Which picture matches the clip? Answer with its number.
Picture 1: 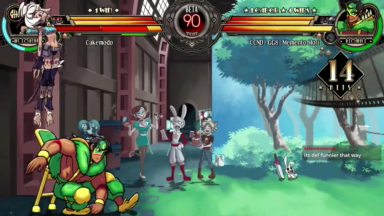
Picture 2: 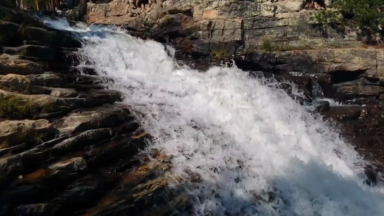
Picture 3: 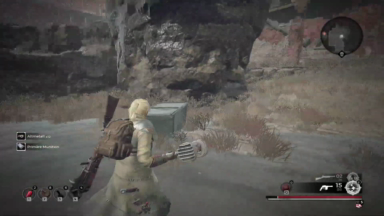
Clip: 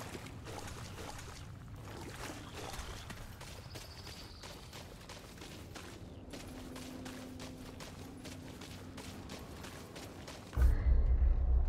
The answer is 3